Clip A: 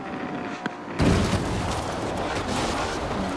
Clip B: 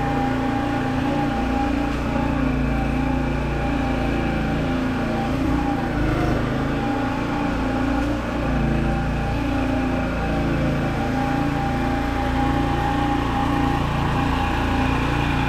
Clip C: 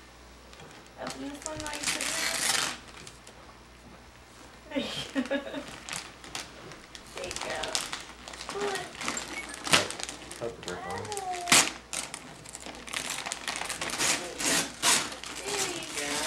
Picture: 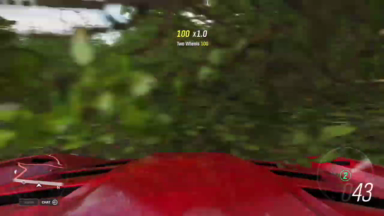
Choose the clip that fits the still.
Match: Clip A